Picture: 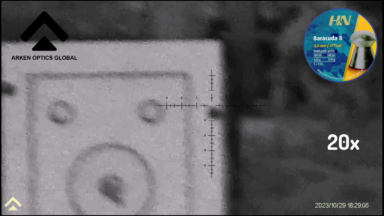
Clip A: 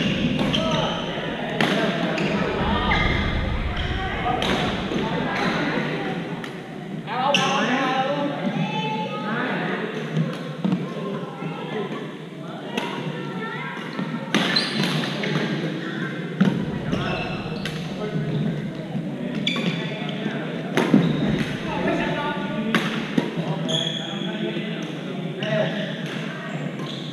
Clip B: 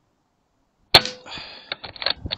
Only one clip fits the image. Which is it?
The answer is B